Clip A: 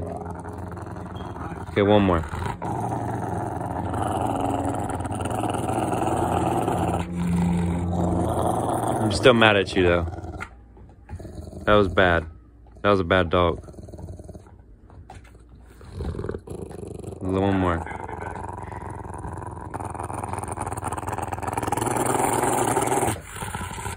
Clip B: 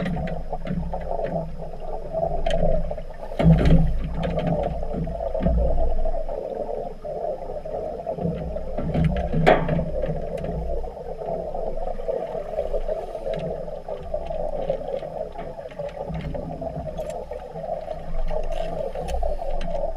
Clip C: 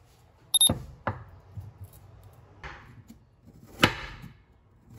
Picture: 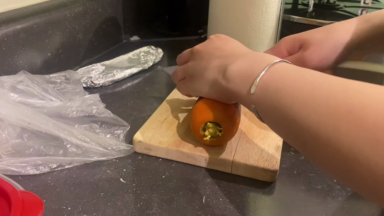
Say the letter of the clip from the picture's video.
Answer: C